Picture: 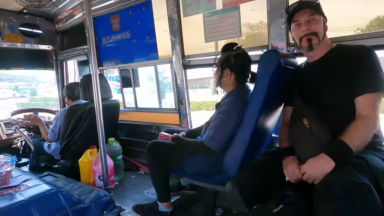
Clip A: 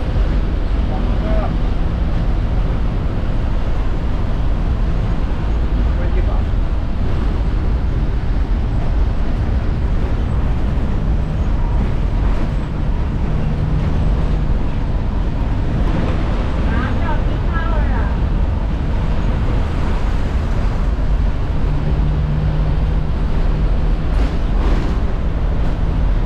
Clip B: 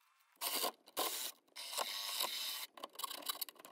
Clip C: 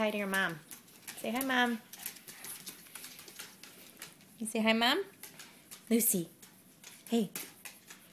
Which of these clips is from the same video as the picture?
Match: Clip A